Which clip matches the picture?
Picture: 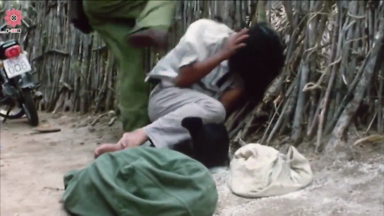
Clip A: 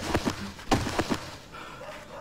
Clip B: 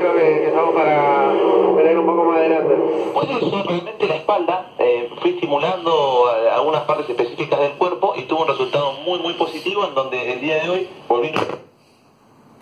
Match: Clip A